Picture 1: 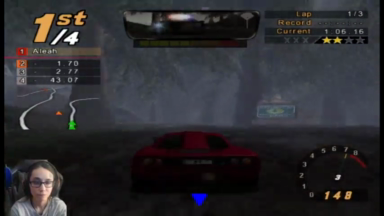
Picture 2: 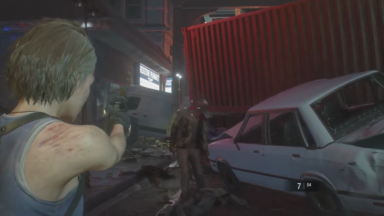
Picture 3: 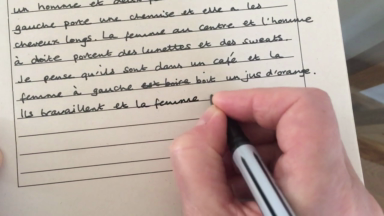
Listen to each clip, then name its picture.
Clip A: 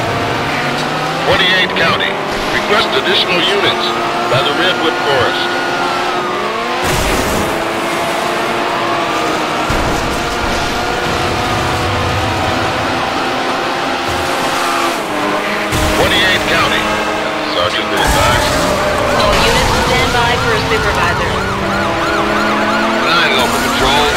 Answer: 1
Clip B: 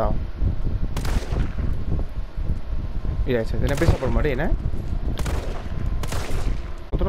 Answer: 2